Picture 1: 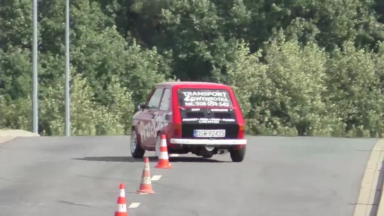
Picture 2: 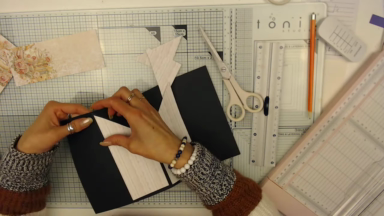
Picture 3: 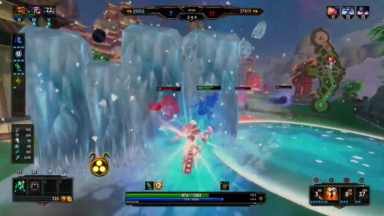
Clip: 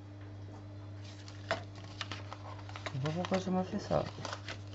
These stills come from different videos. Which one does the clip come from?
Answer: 2